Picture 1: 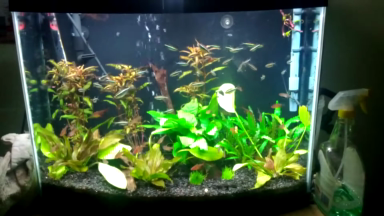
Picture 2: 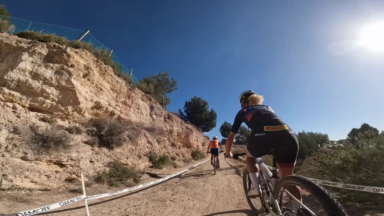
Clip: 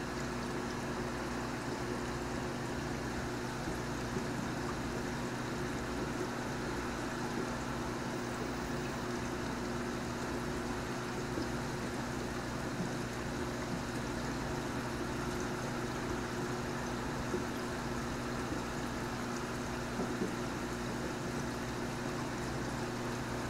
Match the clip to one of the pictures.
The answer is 1